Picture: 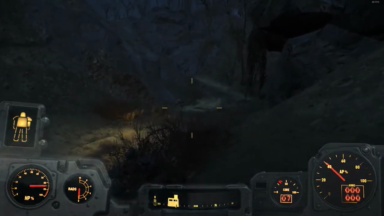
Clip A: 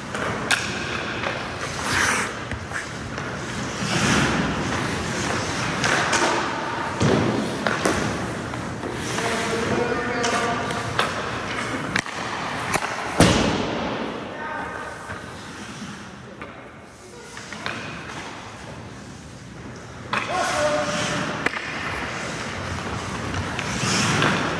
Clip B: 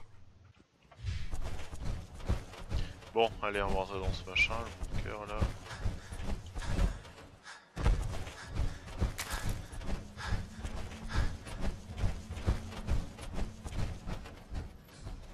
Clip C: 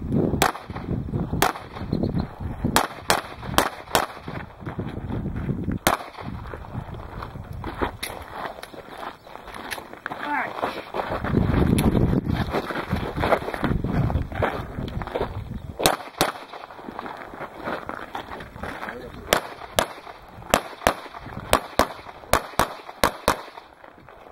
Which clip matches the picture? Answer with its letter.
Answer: B